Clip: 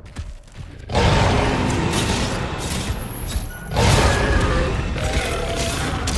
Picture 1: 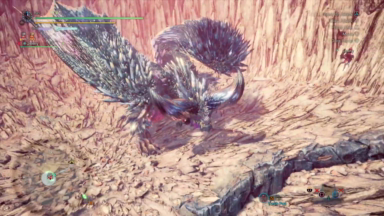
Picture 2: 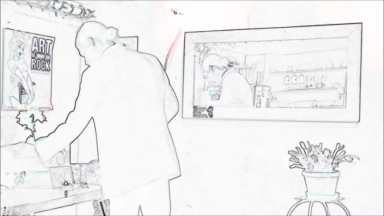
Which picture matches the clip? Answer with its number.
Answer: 1